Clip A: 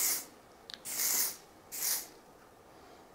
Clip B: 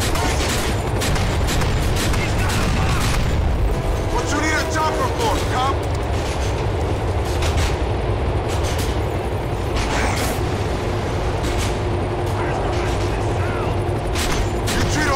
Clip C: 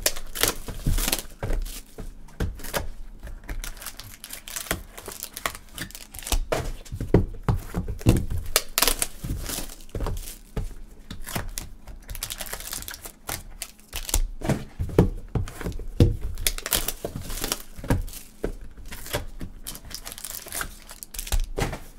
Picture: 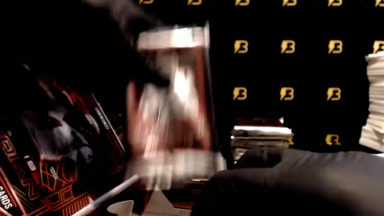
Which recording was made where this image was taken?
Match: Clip C